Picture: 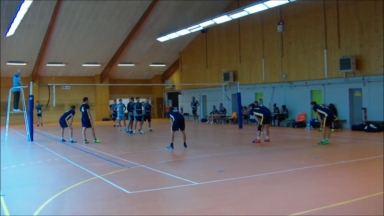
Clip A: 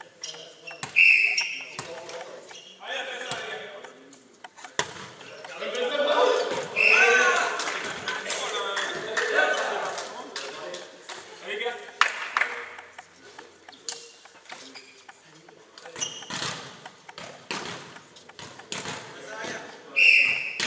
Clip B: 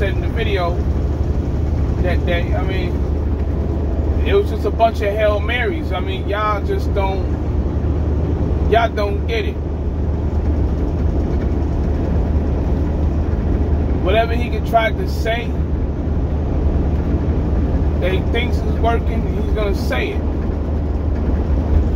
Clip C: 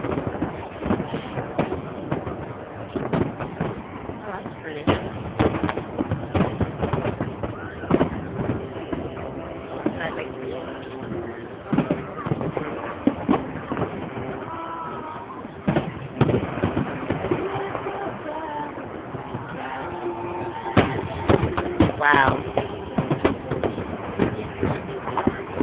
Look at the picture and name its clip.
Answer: A